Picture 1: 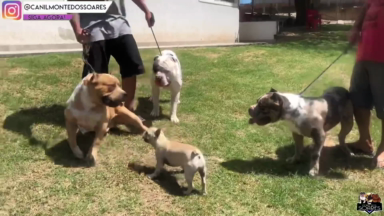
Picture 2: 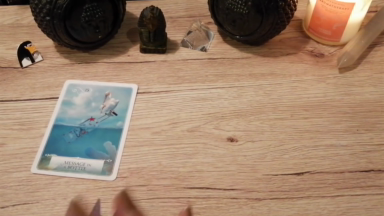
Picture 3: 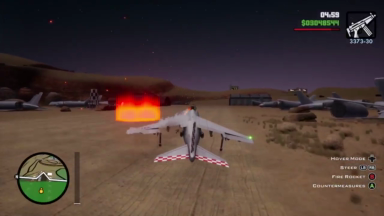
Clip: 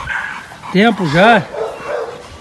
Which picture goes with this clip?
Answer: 1